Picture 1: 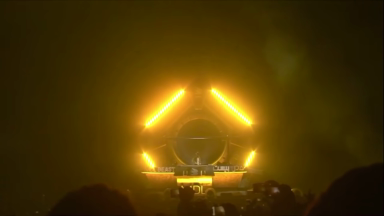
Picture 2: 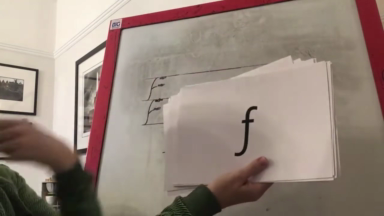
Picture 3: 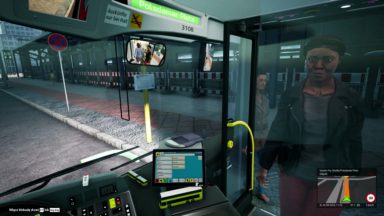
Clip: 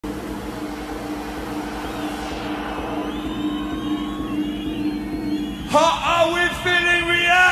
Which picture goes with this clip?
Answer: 1